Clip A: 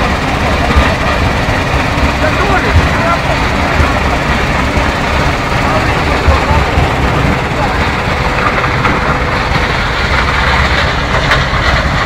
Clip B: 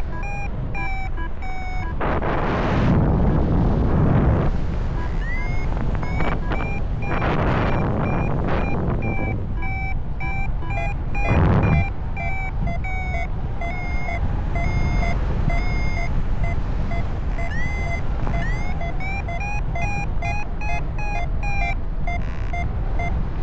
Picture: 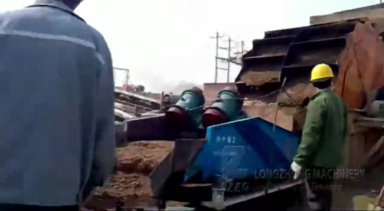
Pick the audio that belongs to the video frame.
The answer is A